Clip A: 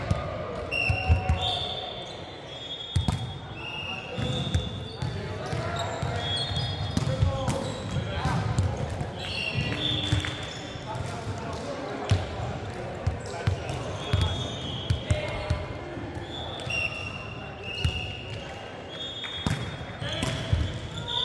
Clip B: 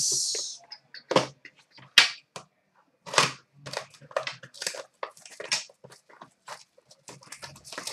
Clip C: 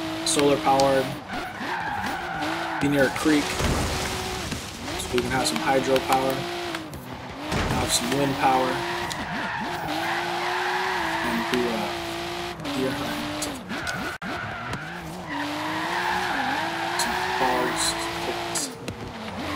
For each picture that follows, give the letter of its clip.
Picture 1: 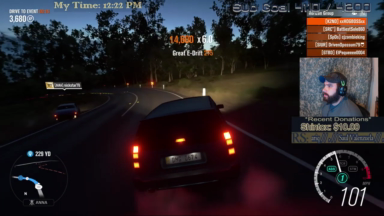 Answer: C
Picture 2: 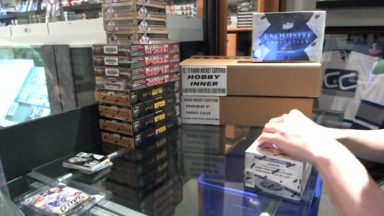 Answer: B